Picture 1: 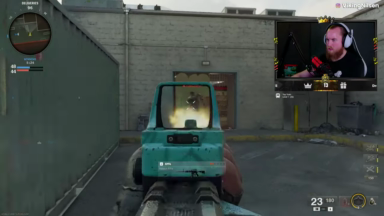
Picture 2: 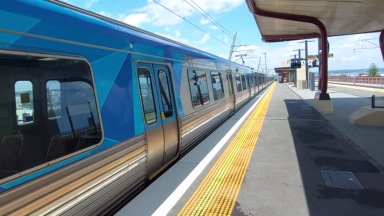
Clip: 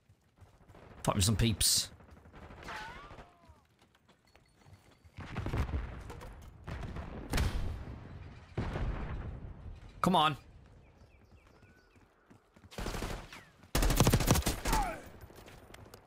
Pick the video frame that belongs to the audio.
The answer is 1